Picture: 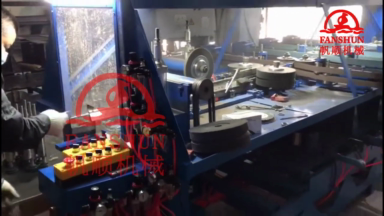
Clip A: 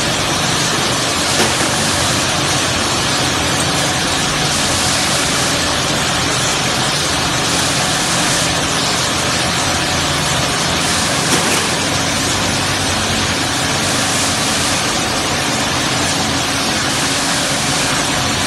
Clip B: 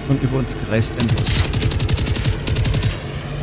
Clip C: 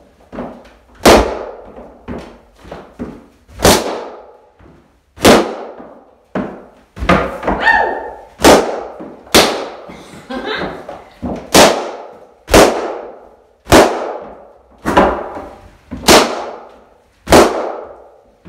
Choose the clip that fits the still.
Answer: A